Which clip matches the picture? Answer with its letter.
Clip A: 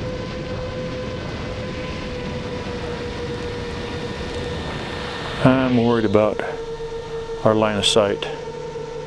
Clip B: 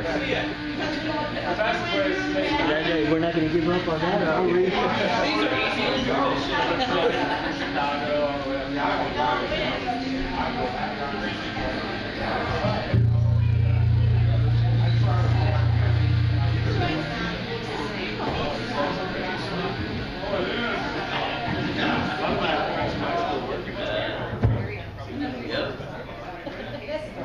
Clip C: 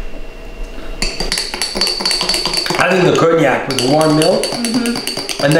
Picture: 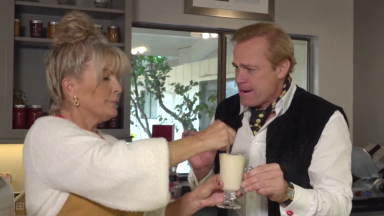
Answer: C